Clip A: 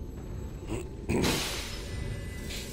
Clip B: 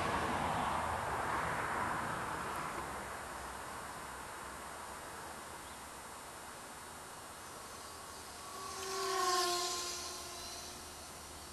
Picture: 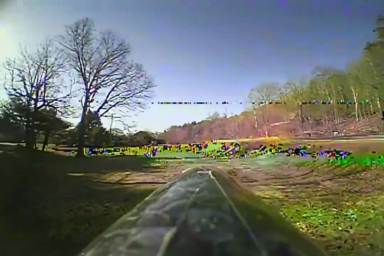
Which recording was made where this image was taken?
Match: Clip B